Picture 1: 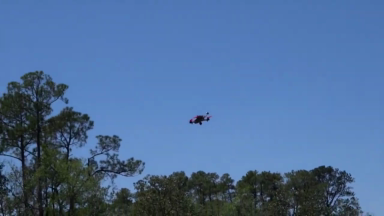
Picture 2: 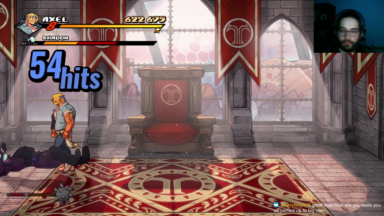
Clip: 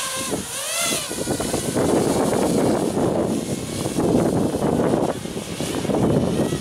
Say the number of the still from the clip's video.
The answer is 1